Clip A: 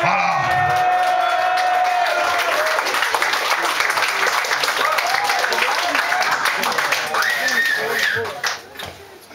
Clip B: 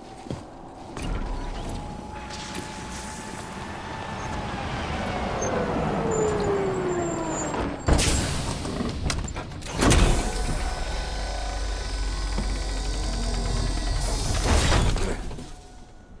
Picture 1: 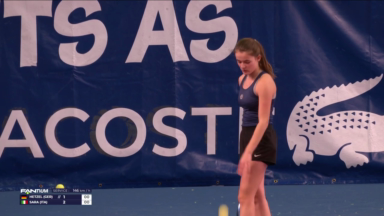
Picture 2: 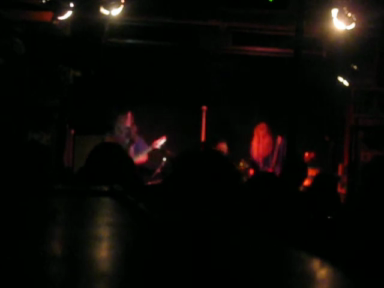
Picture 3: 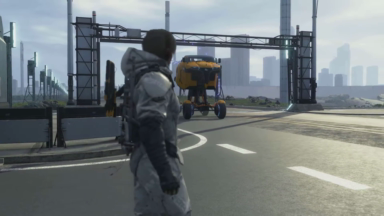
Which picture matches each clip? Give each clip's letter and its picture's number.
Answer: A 2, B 3